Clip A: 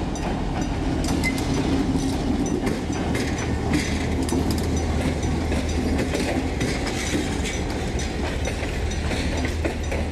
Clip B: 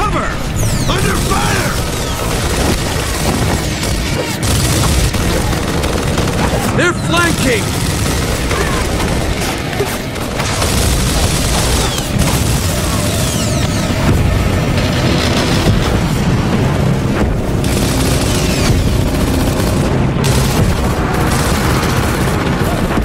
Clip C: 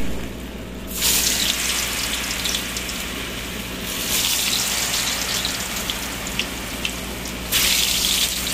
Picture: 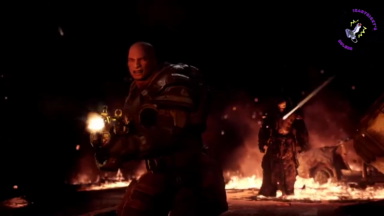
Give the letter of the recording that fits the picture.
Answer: B